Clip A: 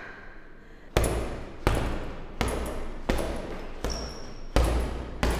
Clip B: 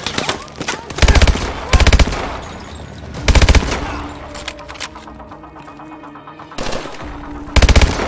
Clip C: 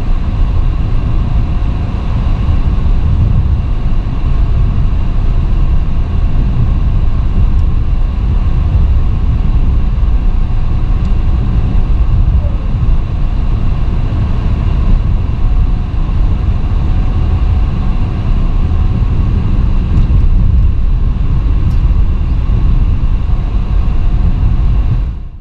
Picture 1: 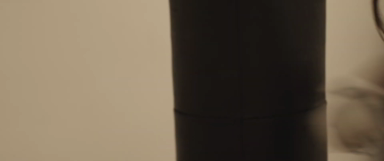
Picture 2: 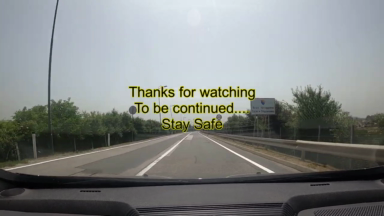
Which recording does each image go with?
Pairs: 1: A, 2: C